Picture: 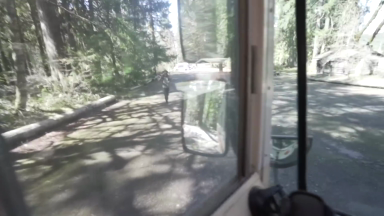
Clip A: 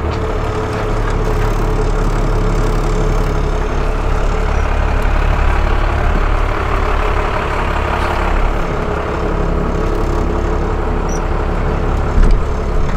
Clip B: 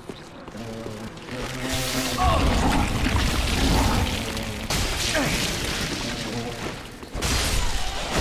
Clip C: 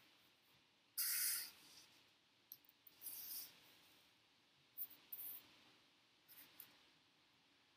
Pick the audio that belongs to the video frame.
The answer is A